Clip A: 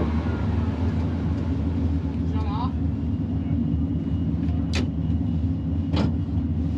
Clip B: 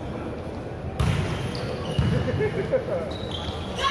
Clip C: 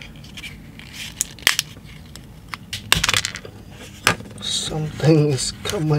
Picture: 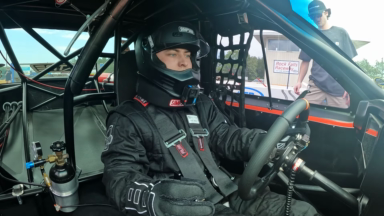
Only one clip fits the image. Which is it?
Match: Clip A